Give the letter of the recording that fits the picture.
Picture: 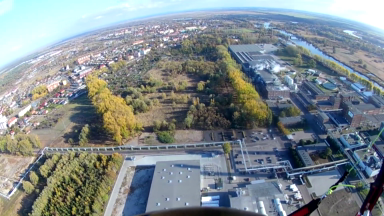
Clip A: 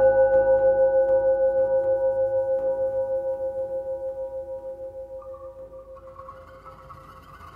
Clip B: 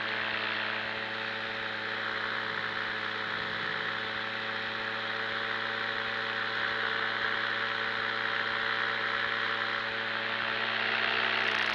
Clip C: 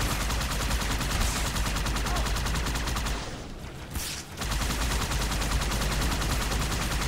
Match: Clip B